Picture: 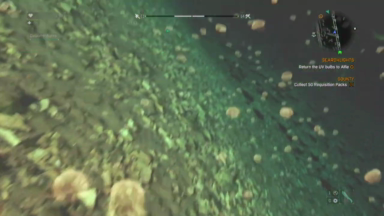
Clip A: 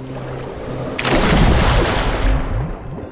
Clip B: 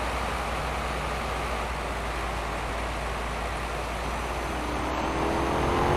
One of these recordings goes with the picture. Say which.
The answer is A